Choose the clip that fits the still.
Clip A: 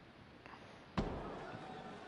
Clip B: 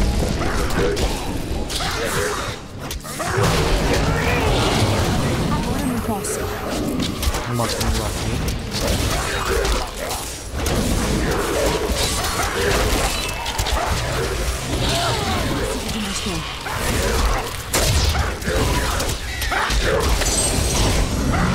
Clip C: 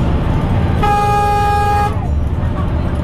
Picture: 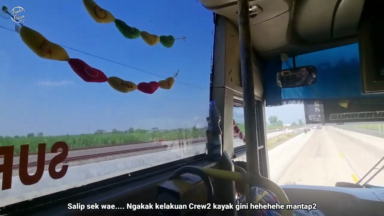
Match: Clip C